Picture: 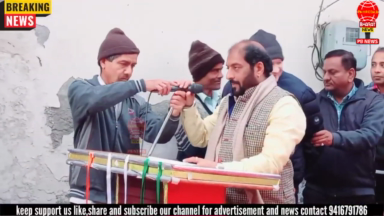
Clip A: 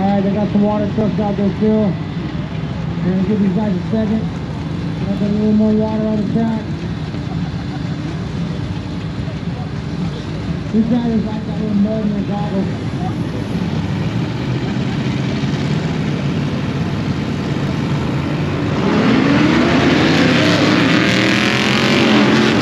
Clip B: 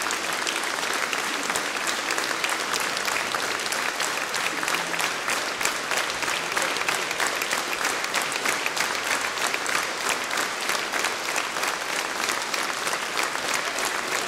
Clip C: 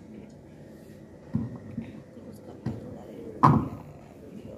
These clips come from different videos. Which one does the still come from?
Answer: C